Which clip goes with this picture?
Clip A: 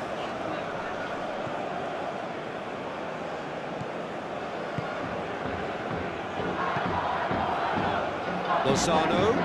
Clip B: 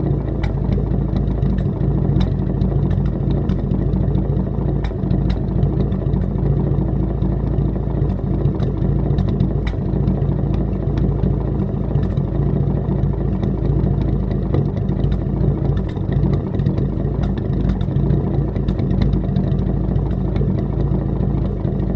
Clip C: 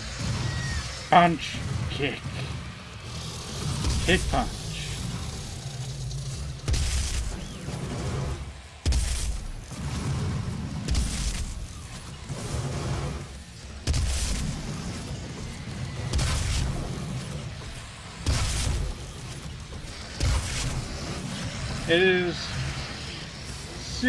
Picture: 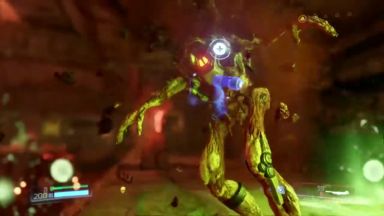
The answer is C